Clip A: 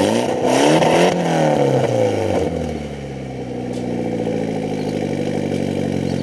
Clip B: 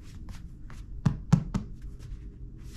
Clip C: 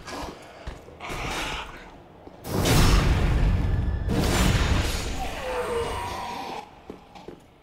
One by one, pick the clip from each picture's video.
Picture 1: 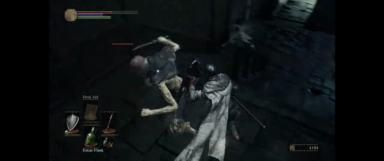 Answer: C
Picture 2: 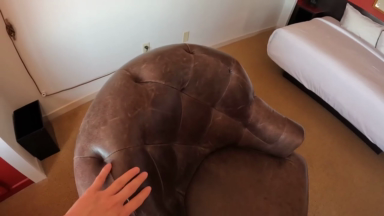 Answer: B